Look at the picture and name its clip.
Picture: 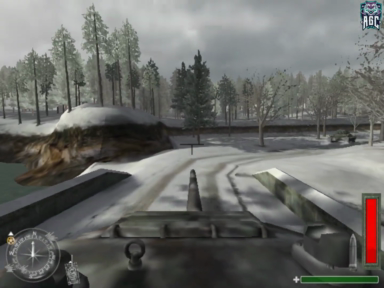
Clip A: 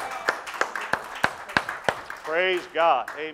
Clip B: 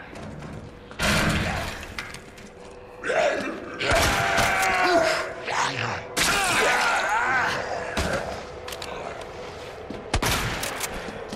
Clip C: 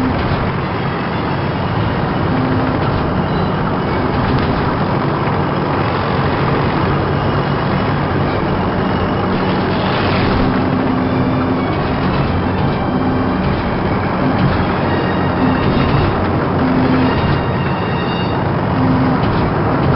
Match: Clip C